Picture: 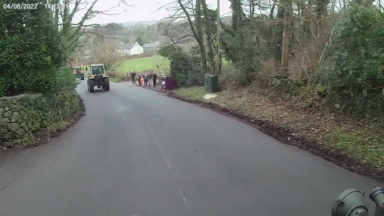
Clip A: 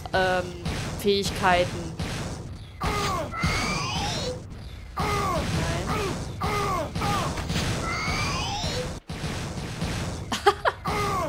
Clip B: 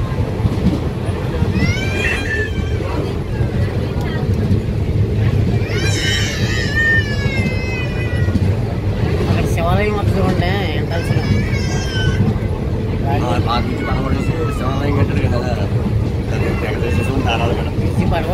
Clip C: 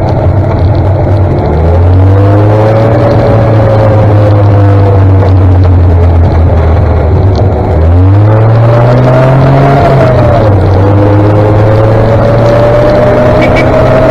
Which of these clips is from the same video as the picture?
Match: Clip C